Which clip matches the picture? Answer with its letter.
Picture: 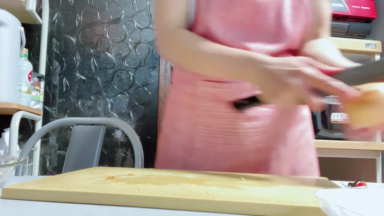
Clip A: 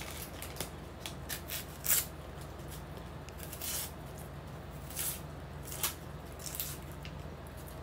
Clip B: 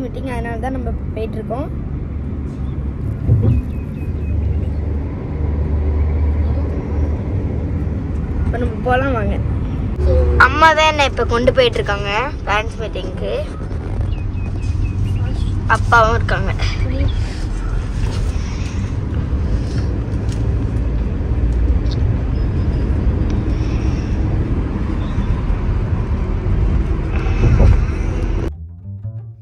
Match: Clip A